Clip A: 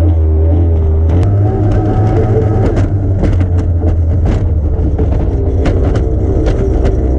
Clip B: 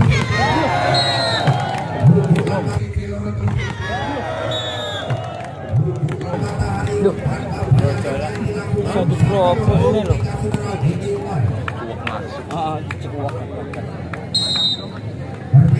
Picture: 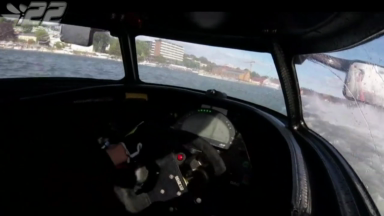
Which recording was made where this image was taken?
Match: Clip A